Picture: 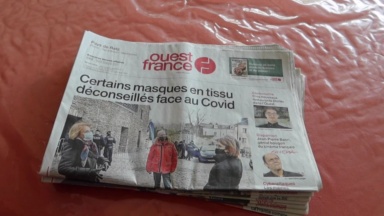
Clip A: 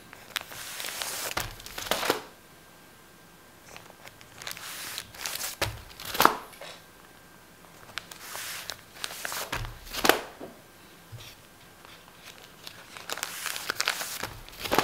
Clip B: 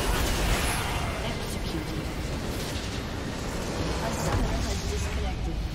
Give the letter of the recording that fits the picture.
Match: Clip A